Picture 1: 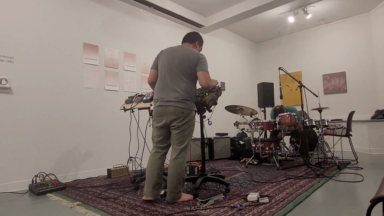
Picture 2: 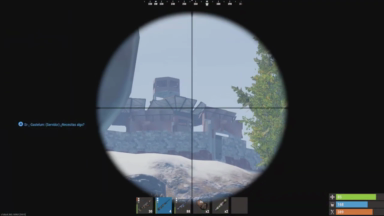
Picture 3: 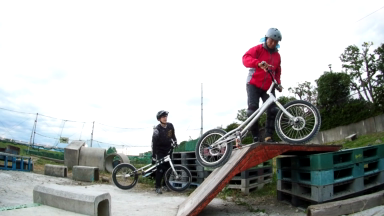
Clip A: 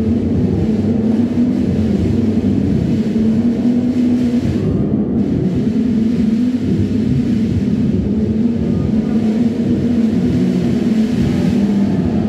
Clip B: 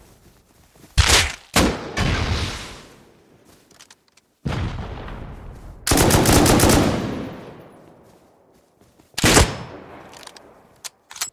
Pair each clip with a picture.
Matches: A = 1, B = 2